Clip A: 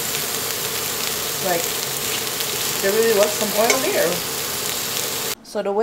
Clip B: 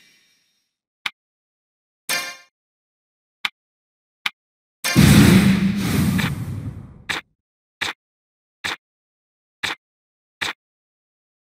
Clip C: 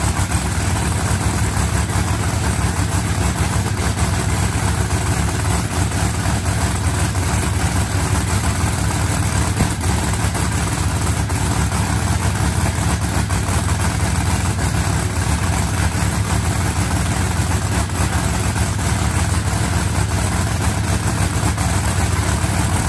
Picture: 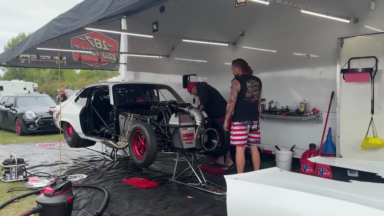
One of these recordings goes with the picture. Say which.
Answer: C